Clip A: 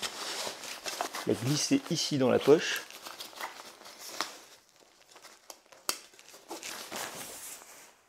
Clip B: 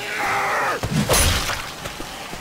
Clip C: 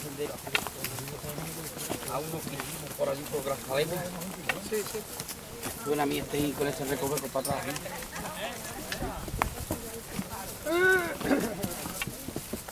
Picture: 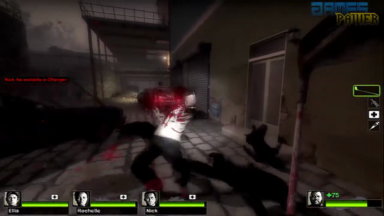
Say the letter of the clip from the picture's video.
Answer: B